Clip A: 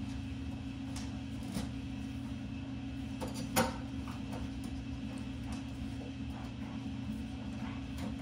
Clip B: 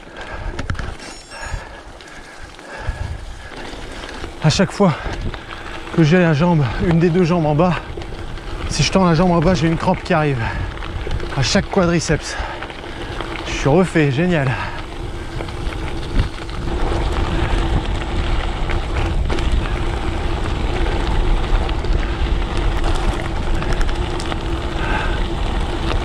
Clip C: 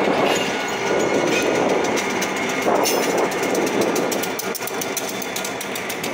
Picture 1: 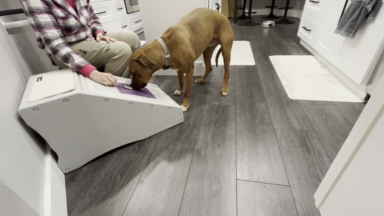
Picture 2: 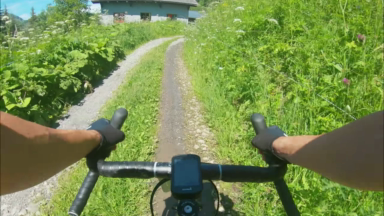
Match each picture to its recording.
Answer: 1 A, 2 B